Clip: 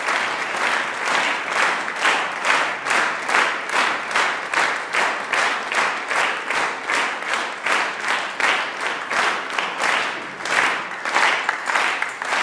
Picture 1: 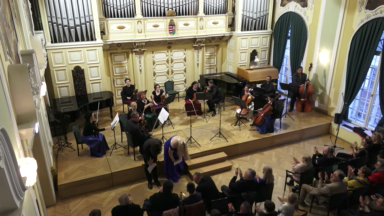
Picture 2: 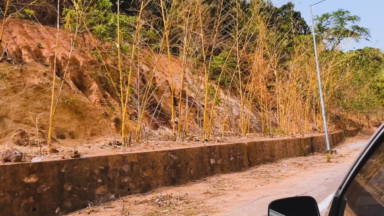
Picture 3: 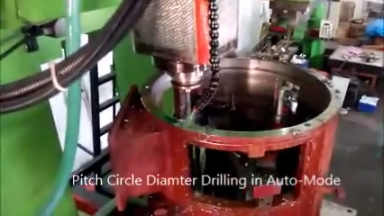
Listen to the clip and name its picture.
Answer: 1